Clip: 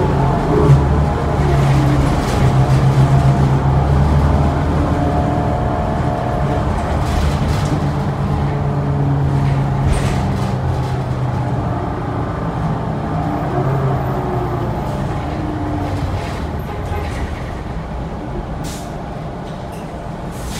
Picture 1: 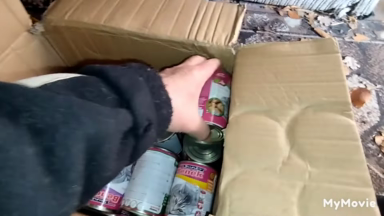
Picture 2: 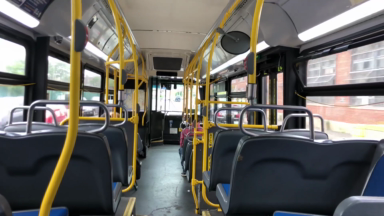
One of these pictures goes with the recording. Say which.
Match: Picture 2